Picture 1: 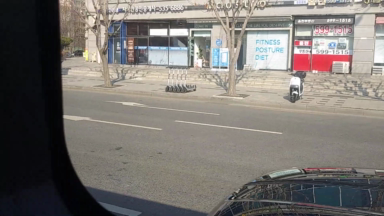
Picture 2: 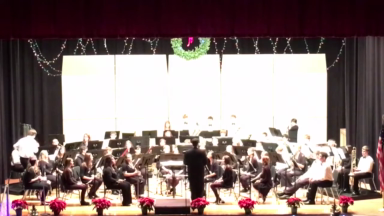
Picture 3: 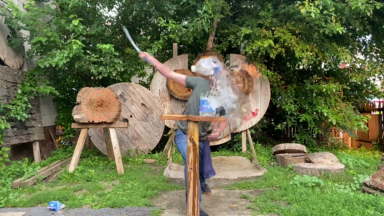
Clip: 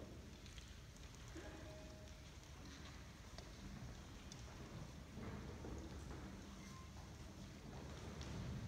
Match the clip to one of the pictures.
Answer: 2